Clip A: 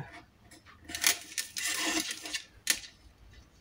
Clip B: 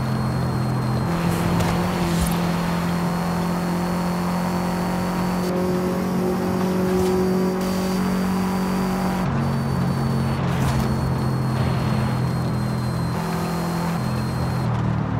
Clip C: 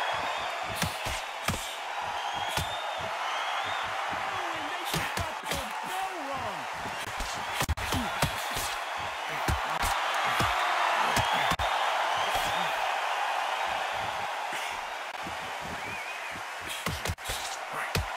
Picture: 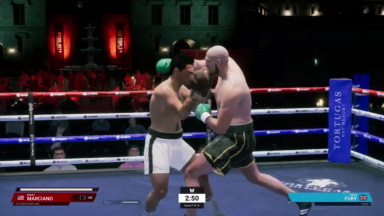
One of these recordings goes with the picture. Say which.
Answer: C